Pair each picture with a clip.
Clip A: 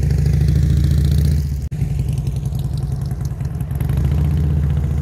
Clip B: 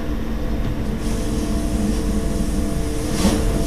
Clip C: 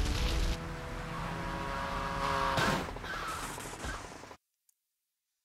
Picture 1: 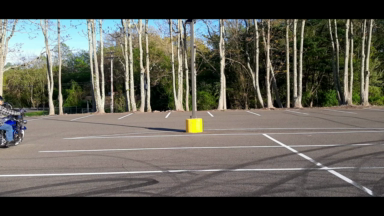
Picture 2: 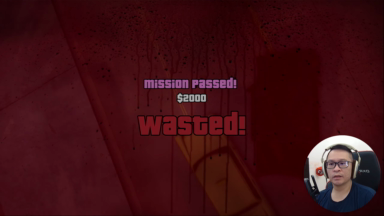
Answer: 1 A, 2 C